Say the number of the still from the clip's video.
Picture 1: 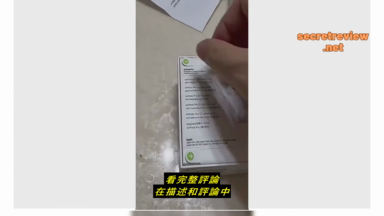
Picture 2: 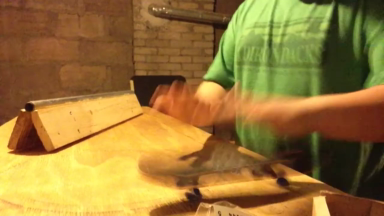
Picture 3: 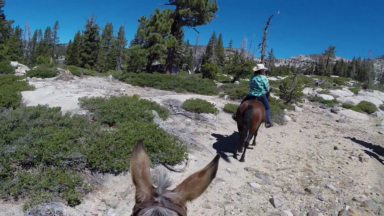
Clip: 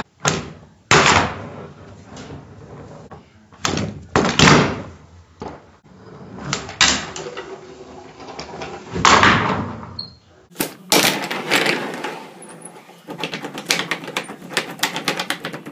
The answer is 2